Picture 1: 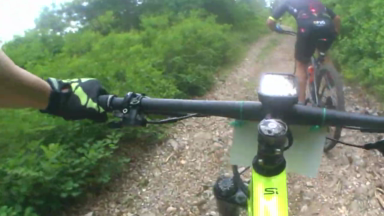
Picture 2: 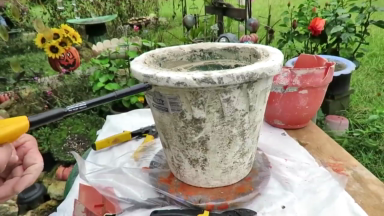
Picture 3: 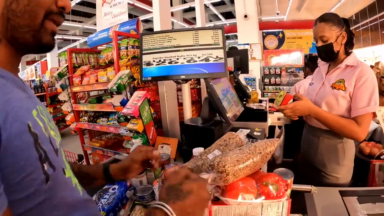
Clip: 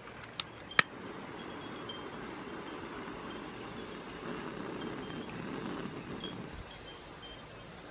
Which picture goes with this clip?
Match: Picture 2